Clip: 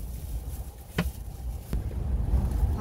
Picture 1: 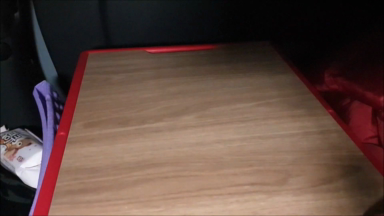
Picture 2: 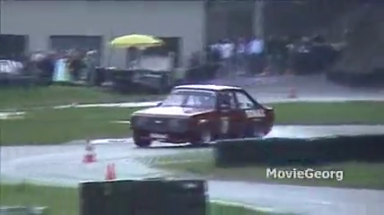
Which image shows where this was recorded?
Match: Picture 1